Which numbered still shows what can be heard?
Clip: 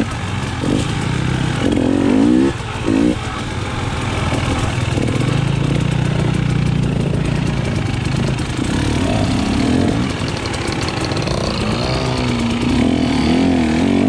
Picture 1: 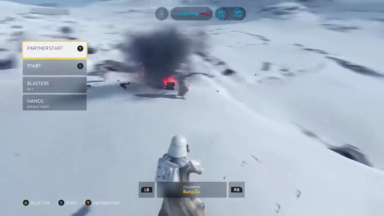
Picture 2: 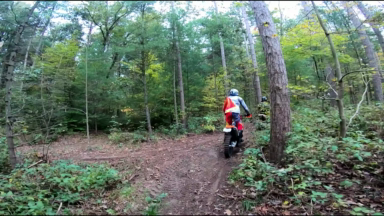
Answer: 2